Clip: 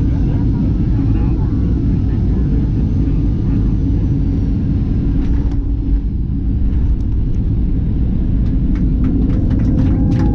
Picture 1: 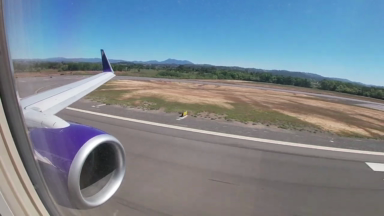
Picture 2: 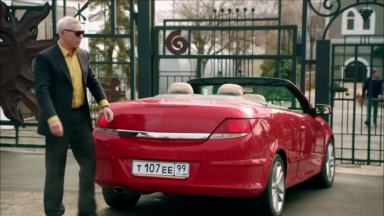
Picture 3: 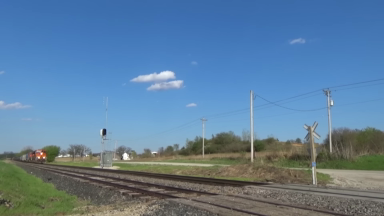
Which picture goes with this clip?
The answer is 1